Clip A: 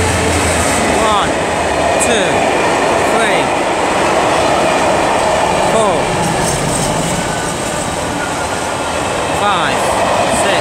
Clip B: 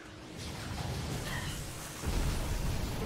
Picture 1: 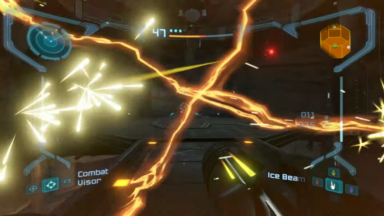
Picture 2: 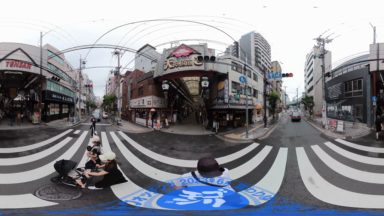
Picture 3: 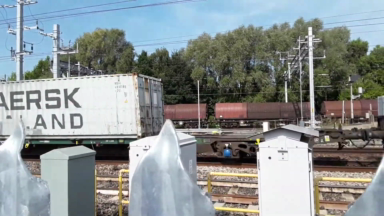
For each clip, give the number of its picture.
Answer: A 3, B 1